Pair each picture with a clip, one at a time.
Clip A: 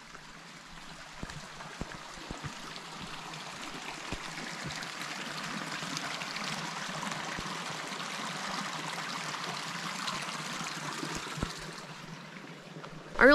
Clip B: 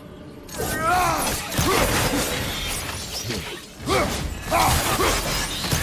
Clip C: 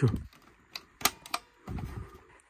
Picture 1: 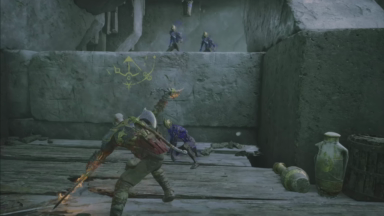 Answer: B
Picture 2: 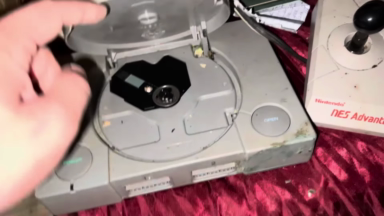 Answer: C